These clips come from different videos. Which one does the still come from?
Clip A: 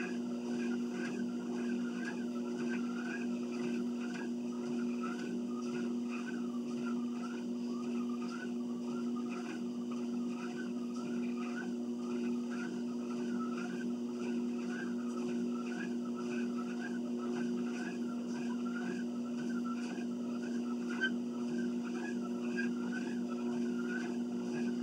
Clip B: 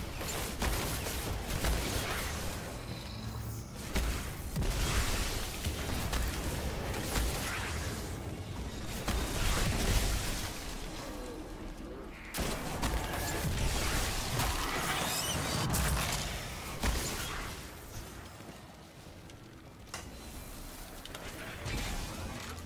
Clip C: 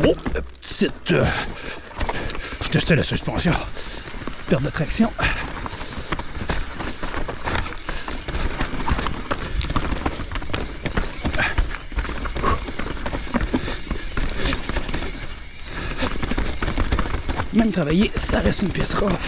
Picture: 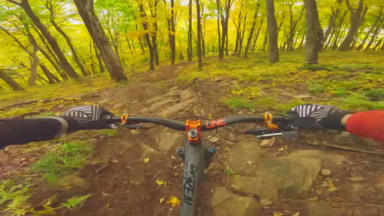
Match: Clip C